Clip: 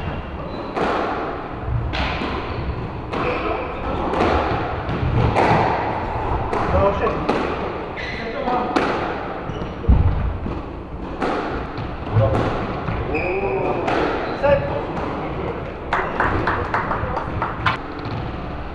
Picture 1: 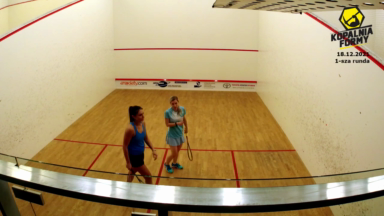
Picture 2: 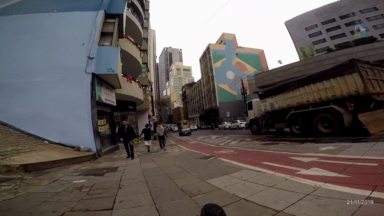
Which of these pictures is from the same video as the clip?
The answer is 1